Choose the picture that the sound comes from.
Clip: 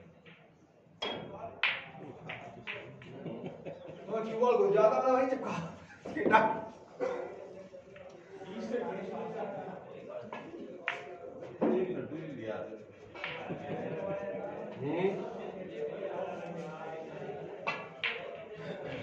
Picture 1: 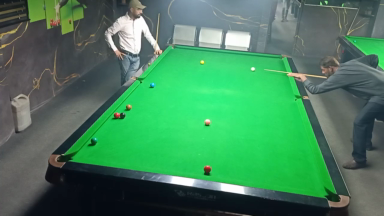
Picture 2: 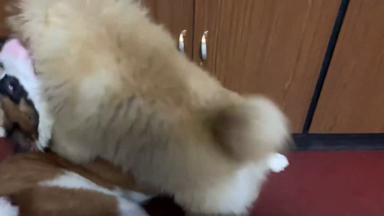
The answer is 1